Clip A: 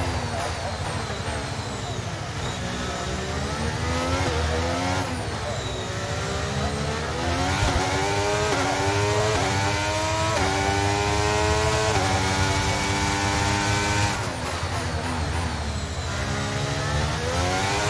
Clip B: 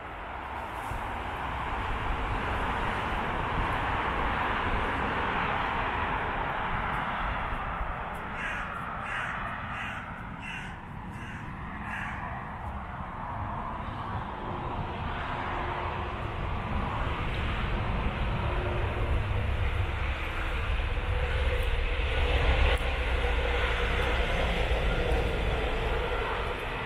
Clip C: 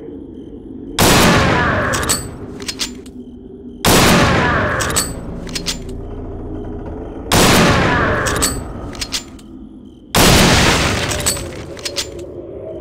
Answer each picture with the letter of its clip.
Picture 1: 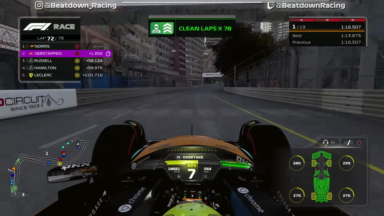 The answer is A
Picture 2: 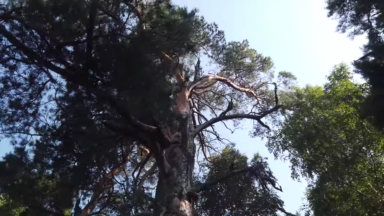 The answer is B